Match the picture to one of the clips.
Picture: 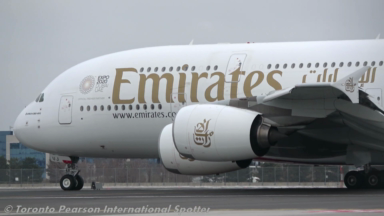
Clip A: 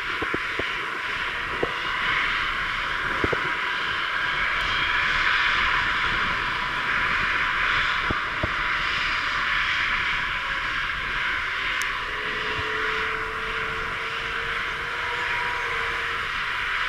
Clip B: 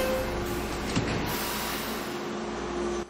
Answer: A